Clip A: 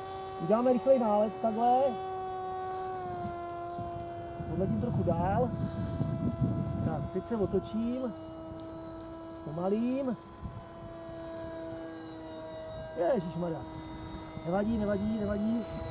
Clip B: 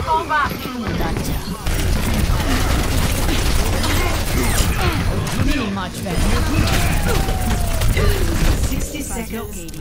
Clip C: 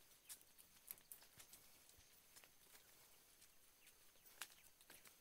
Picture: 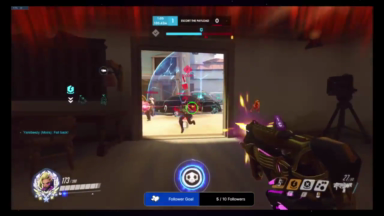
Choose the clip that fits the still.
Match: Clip B